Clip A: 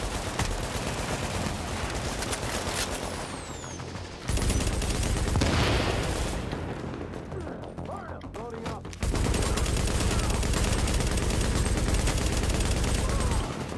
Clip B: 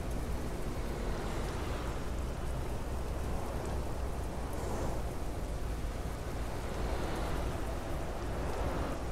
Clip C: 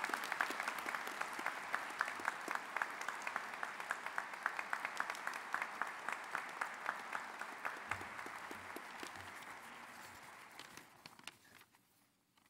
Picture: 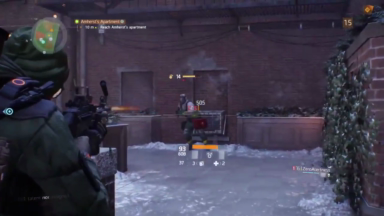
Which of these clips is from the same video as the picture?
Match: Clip A